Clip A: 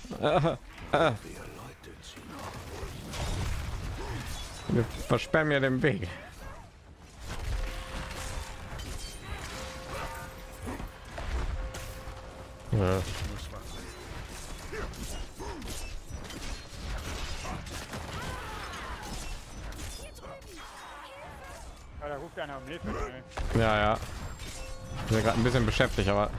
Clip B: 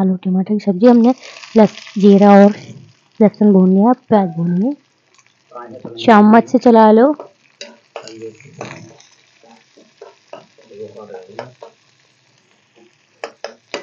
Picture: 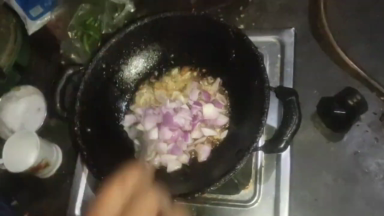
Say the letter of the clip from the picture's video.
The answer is B